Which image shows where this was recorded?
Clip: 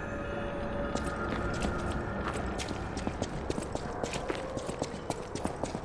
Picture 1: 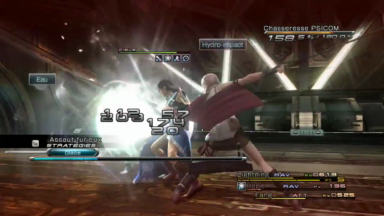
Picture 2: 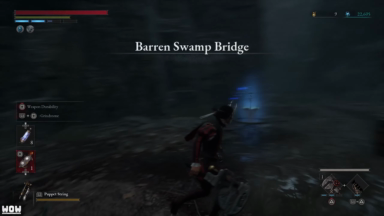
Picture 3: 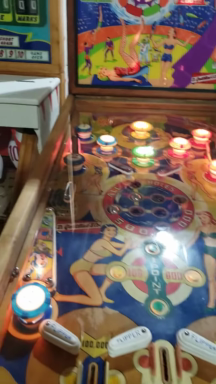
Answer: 2